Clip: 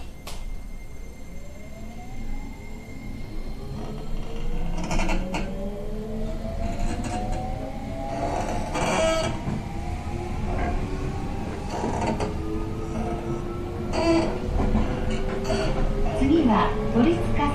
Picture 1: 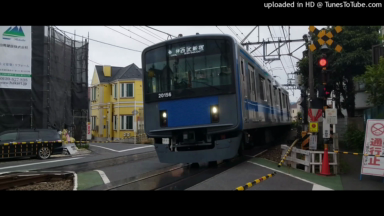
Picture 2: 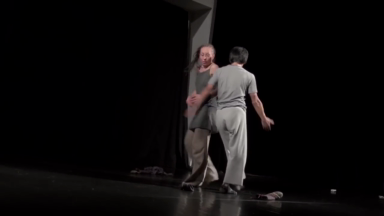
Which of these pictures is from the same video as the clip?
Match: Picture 1